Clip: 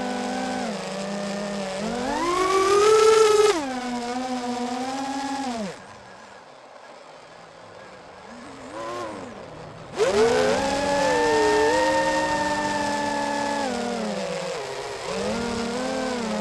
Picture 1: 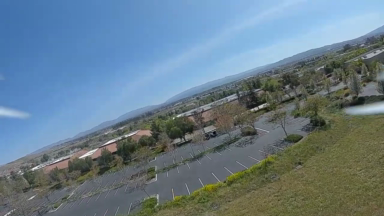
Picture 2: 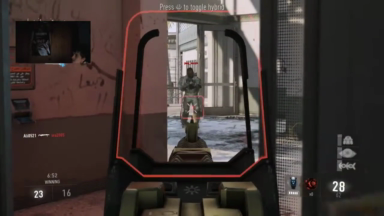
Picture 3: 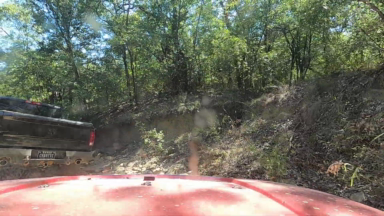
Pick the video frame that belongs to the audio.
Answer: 1